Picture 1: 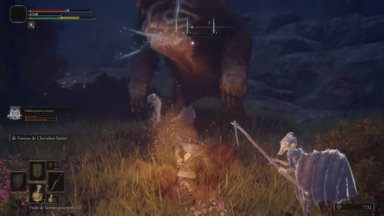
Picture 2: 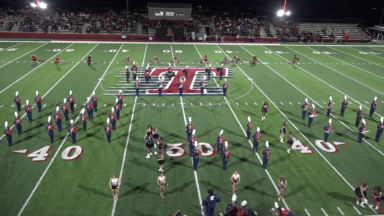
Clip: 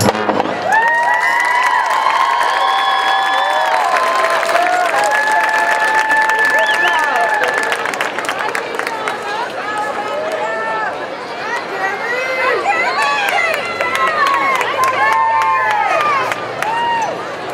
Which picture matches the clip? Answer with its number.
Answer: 2